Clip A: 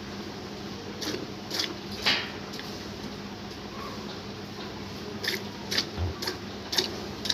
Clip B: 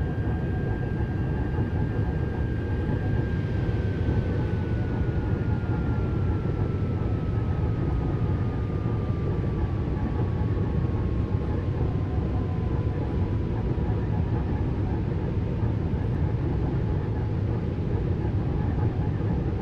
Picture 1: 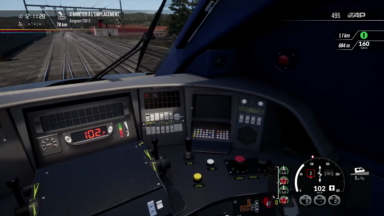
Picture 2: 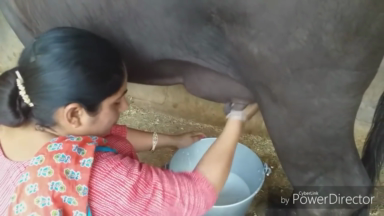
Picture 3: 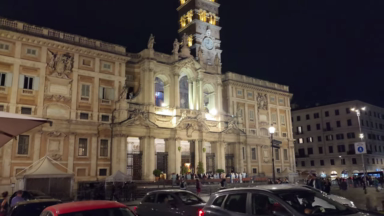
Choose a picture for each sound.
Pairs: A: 2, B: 1